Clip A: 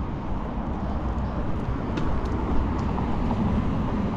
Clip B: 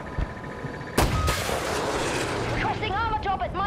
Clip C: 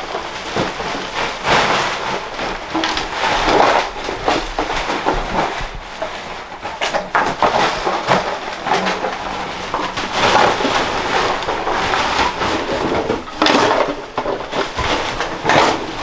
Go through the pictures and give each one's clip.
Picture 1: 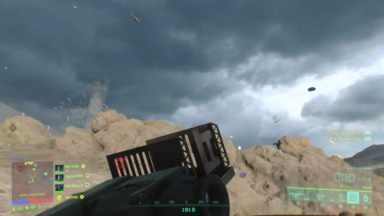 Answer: B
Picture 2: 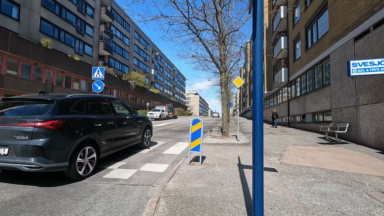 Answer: A